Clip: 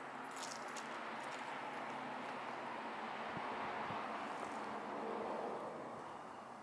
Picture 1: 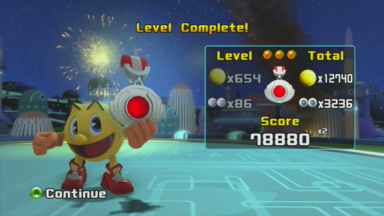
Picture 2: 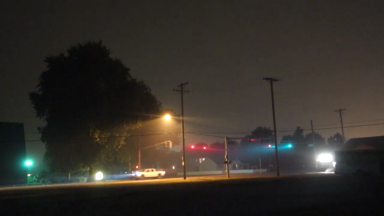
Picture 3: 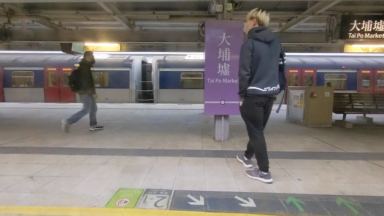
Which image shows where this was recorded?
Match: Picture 2